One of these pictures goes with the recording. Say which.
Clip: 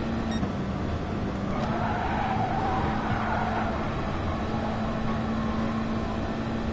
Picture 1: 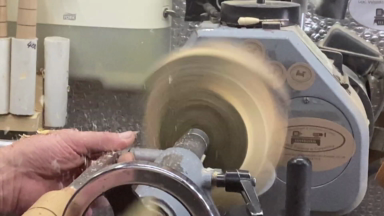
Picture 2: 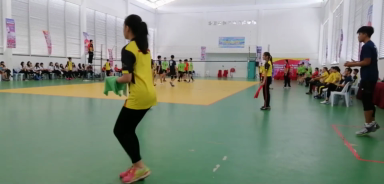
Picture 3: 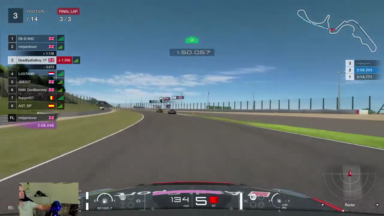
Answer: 3